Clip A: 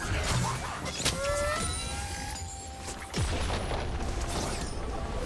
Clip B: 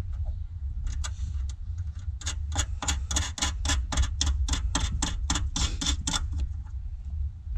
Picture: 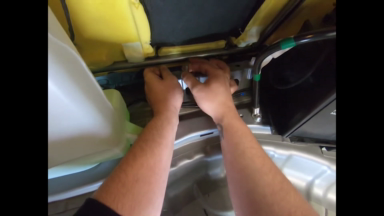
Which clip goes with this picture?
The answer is B